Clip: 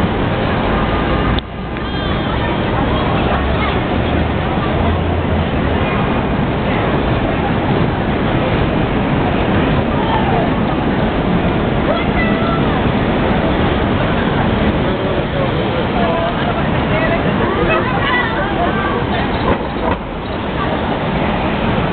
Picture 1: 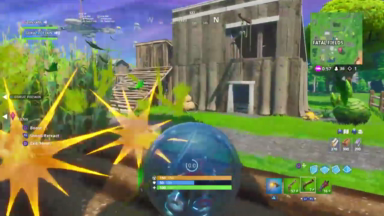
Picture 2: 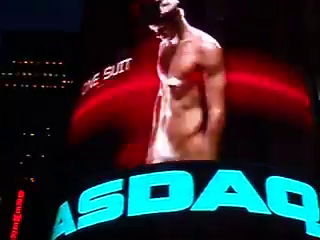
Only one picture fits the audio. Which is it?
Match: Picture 2